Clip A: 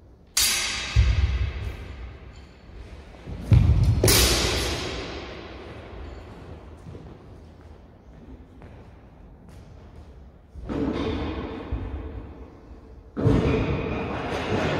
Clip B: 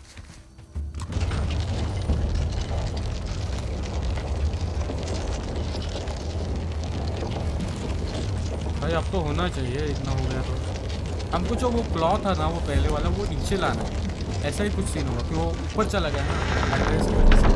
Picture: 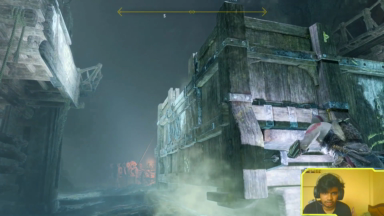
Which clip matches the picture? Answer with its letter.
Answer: B